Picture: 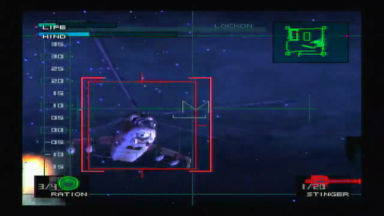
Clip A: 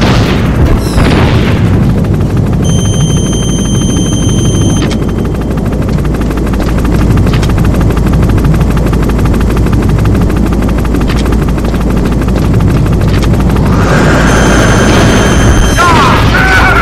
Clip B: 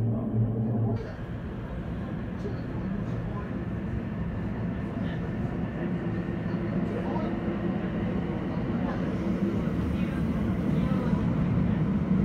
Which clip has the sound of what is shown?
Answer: A